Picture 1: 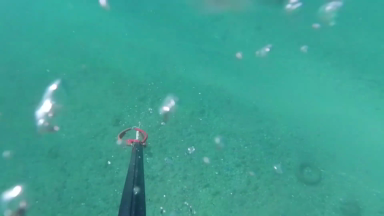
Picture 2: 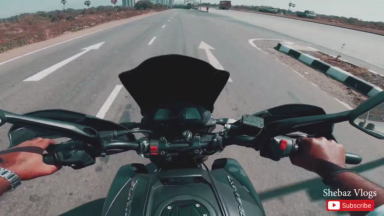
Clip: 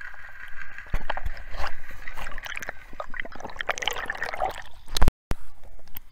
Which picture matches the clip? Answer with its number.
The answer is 1